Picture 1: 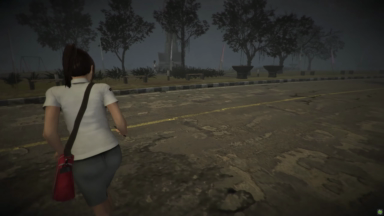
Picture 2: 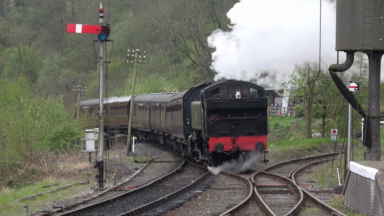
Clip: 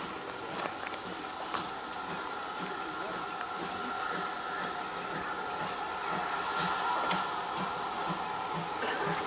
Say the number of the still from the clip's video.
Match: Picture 2